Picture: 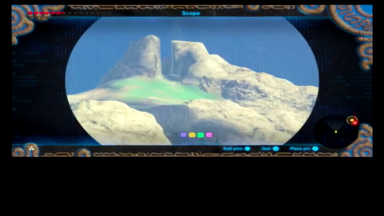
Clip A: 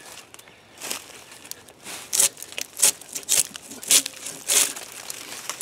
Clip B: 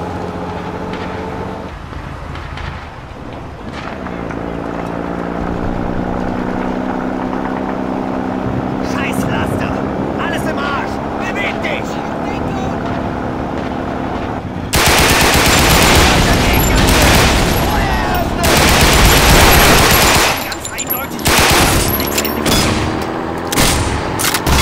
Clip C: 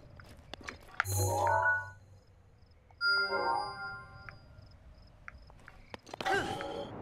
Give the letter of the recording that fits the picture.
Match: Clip C